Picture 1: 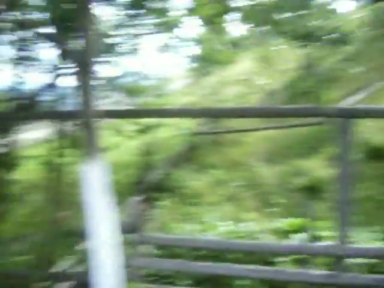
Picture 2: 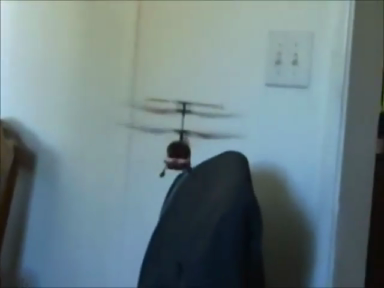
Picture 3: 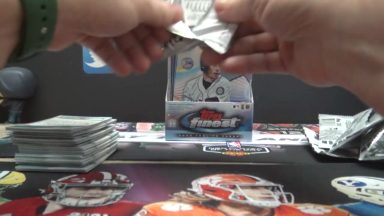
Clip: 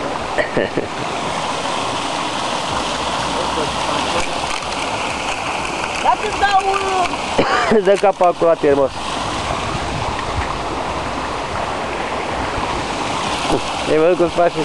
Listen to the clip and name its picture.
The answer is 1